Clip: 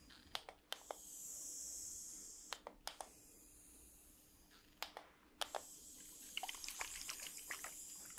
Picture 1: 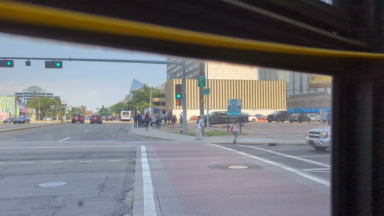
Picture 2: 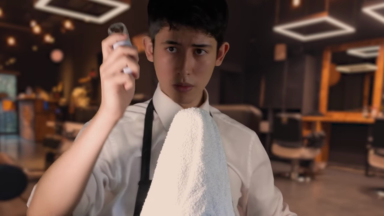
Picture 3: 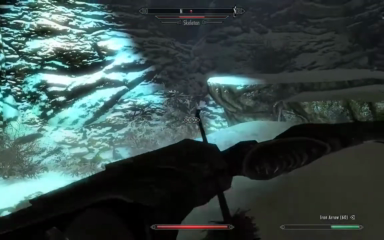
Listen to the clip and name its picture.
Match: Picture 2